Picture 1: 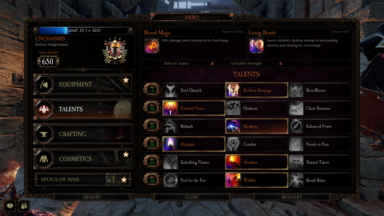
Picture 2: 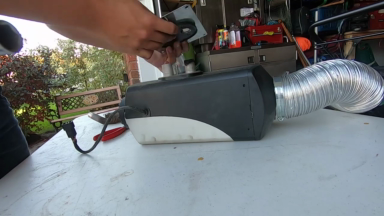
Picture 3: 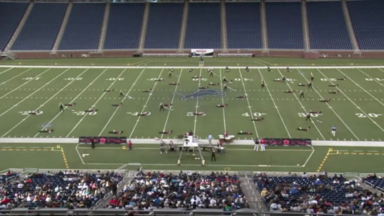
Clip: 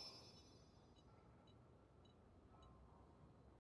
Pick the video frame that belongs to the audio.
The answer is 1